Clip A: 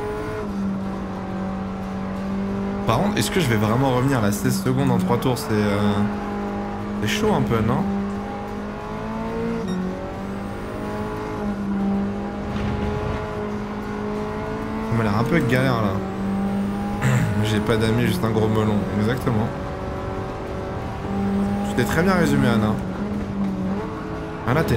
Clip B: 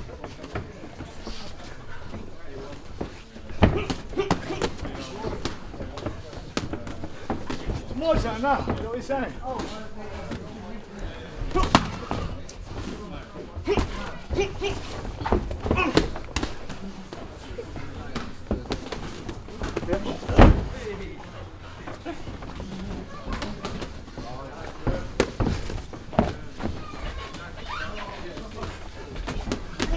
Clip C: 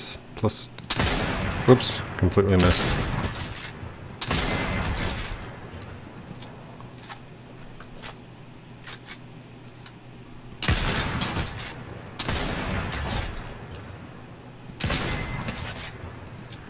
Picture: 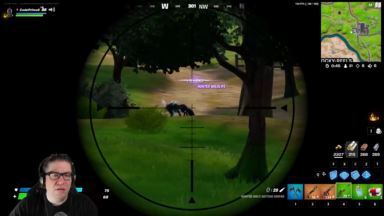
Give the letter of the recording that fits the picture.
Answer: C